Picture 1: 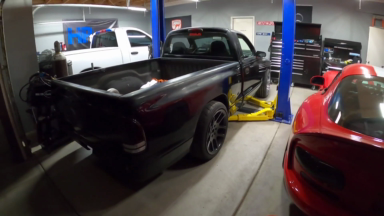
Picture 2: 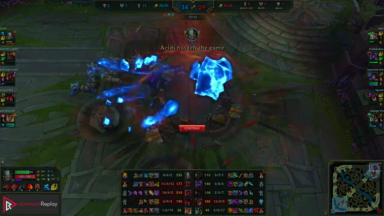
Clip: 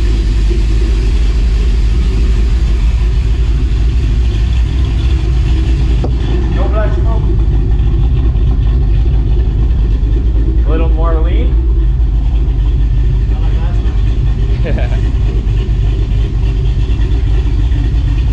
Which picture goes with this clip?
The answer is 1